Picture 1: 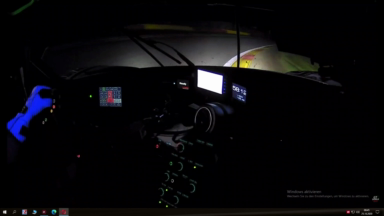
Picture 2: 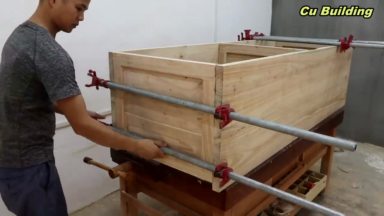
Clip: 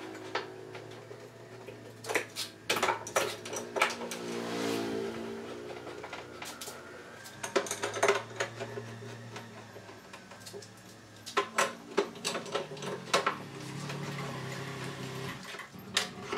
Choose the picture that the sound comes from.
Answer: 2